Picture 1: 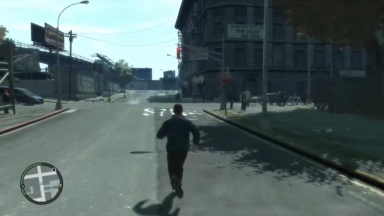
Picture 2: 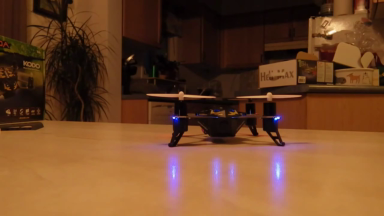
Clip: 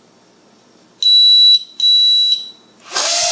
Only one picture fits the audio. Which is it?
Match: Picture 2